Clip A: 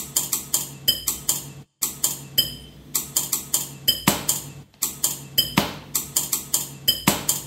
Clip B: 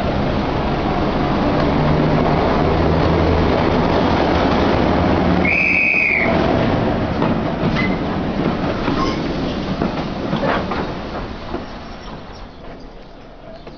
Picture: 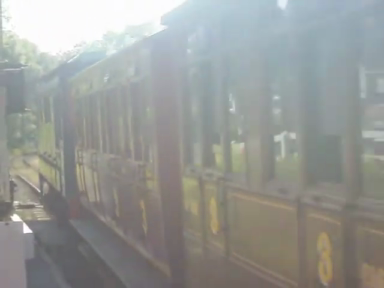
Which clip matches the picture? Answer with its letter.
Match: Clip B